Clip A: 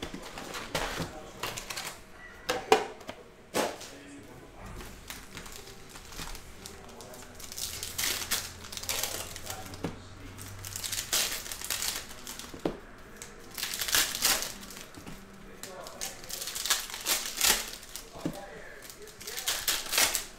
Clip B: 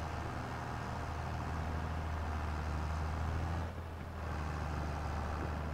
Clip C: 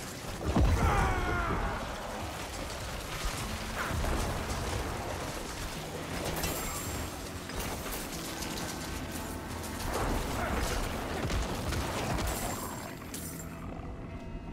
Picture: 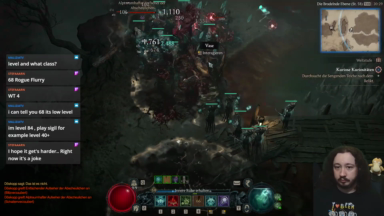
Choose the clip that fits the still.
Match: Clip C